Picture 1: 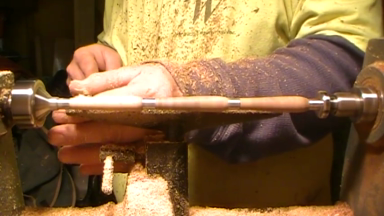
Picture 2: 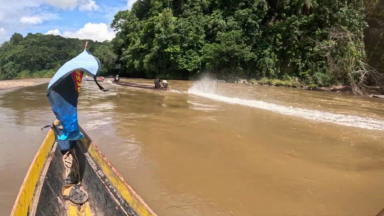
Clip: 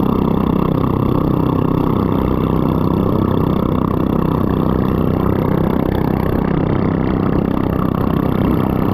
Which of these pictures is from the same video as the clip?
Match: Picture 2